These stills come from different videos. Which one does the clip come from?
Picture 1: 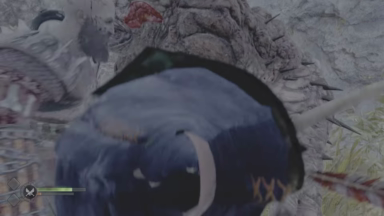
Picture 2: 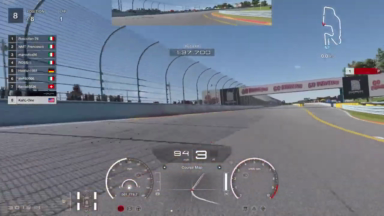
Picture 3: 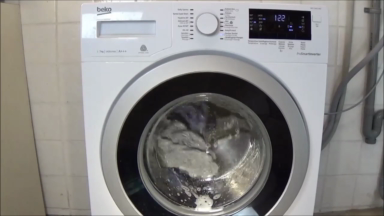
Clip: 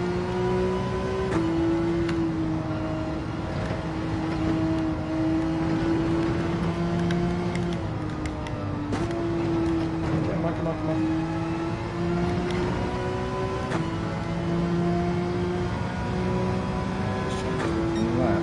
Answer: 2